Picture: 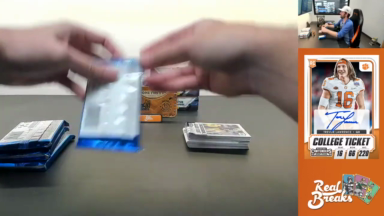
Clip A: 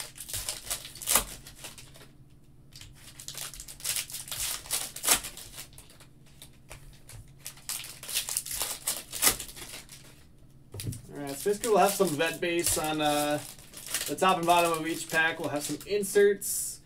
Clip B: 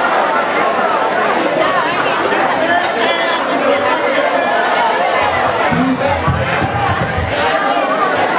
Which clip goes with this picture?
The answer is A